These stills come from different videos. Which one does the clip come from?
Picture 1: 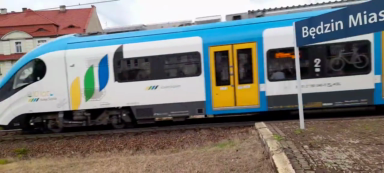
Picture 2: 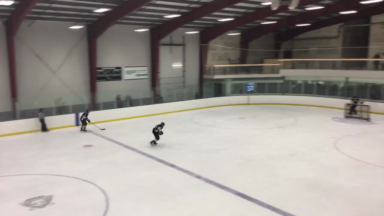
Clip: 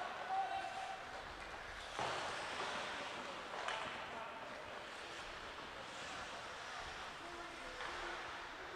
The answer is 2